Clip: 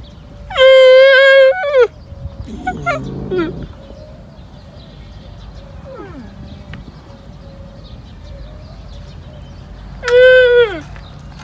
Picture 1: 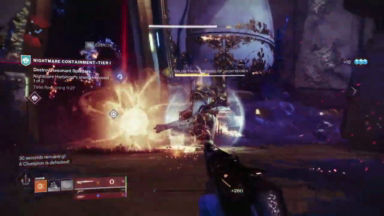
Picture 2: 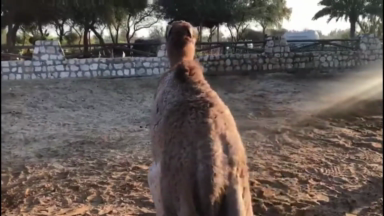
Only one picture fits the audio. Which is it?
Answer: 2